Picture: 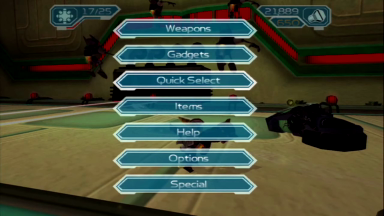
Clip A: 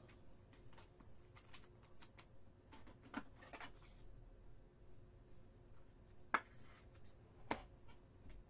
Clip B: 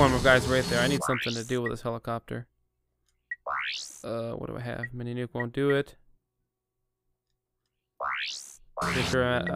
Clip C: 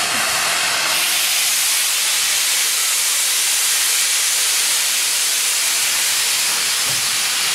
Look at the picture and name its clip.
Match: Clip B